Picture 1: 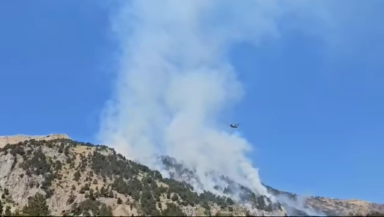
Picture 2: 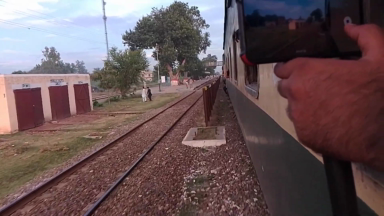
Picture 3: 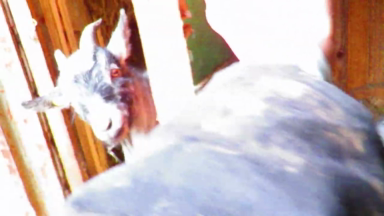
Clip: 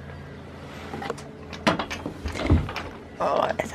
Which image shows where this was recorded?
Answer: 3